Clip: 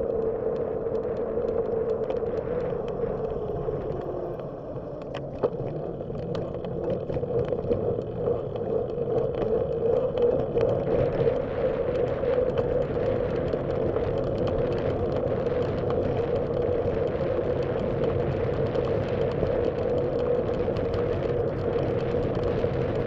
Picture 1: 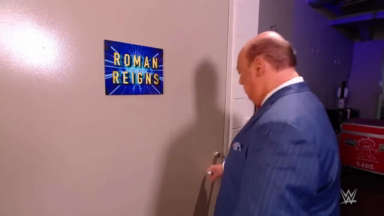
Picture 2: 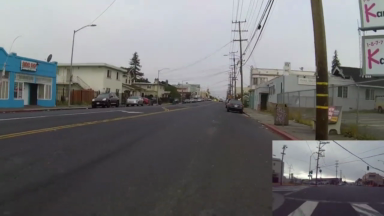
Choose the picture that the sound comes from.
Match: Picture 2